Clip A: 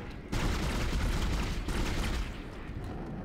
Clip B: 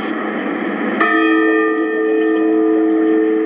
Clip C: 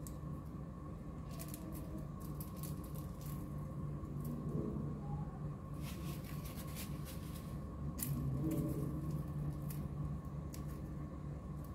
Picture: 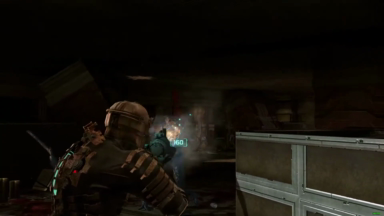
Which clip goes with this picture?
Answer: A